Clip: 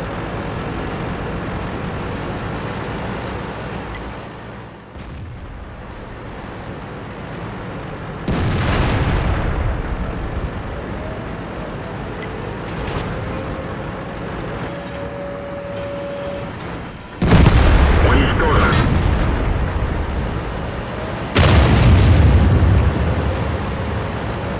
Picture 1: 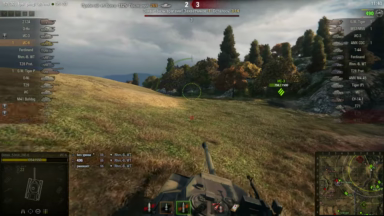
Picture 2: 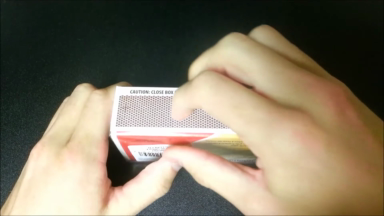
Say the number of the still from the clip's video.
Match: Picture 1